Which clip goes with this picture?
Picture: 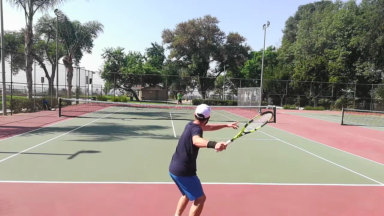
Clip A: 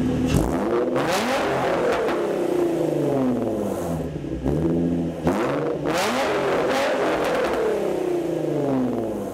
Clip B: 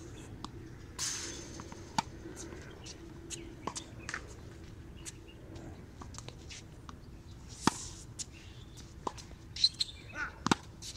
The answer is B